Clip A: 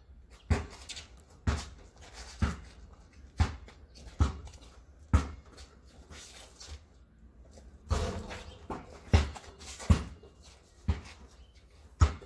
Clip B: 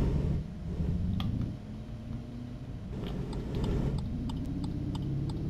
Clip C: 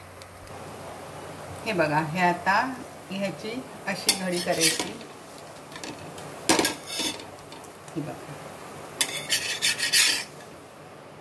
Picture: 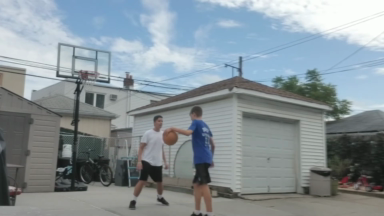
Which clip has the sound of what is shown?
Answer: A